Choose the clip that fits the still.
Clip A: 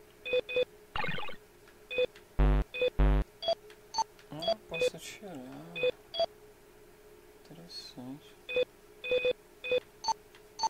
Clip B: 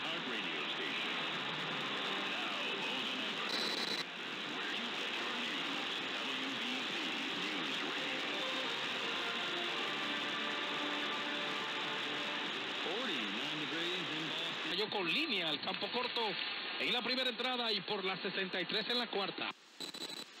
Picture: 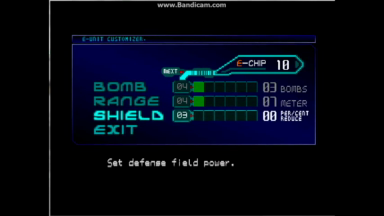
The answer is A